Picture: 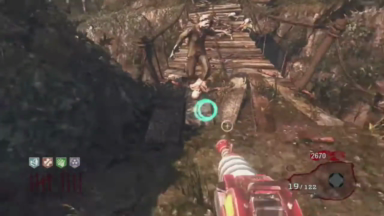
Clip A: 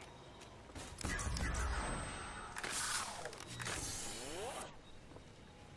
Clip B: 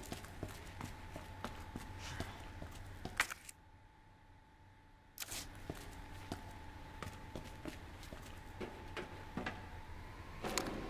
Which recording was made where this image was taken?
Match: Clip A